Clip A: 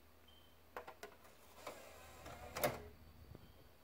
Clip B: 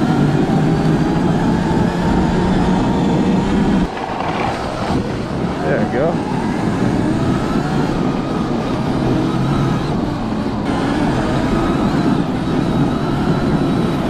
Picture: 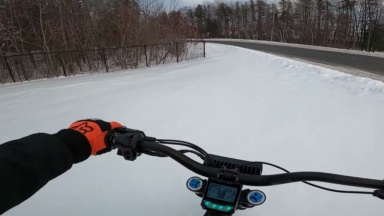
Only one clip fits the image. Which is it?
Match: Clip B